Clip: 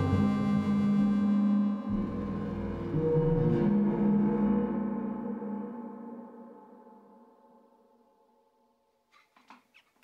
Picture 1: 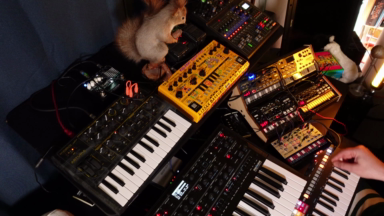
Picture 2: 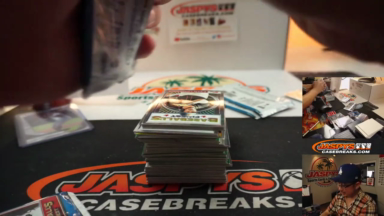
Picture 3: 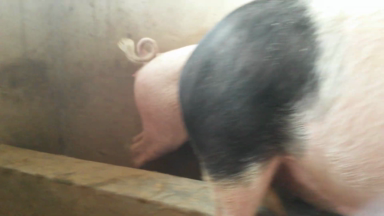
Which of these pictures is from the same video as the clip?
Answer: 1